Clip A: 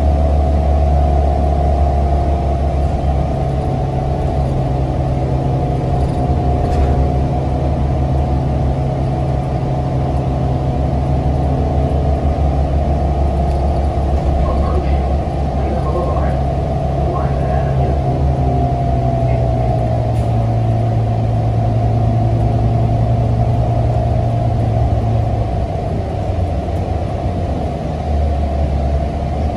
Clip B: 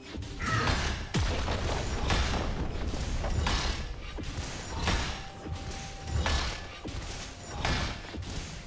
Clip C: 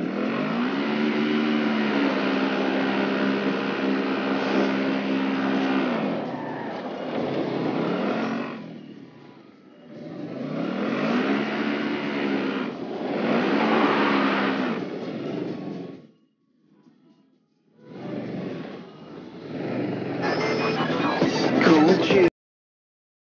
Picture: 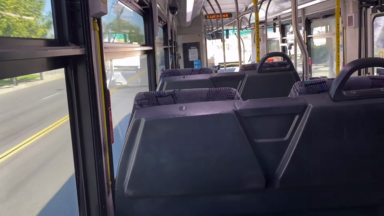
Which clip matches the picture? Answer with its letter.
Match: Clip A